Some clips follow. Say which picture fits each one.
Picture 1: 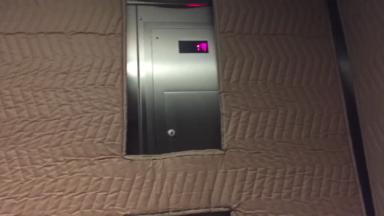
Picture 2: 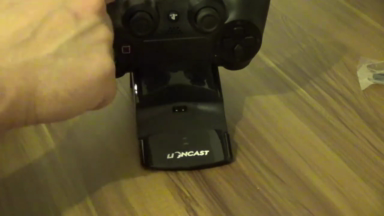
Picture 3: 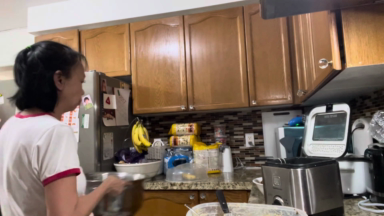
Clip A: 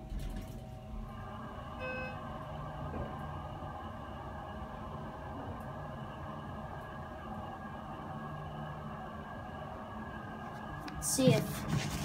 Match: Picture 1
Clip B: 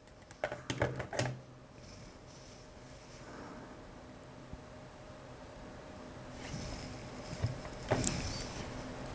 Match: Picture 2